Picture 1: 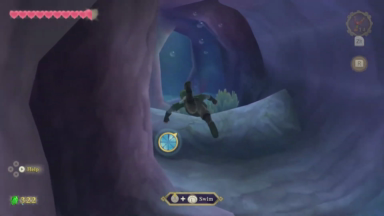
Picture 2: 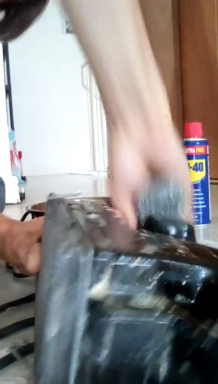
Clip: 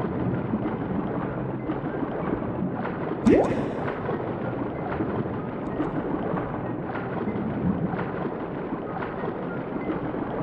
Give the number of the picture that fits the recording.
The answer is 1